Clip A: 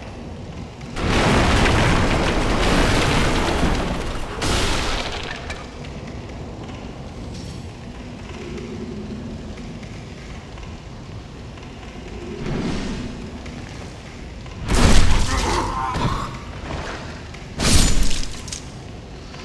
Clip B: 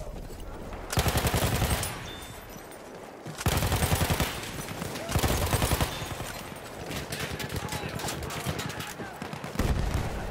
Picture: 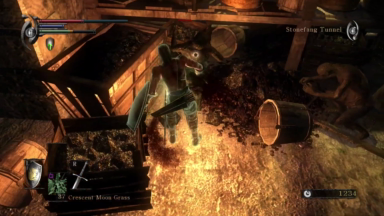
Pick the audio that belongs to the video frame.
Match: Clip A